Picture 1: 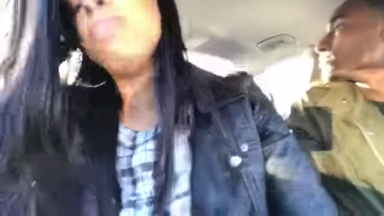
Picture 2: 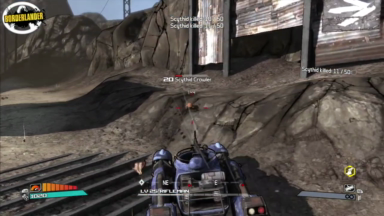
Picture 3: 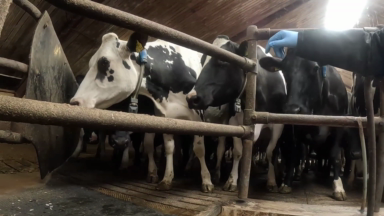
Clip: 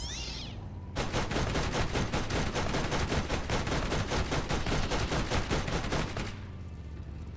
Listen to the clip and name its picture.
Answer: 2